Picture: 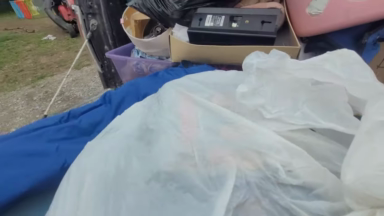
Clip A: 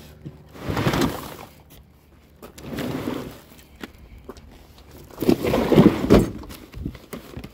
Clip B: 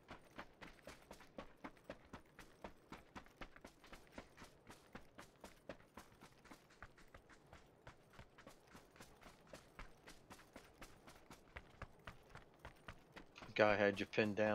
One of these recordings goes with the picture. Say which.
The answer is A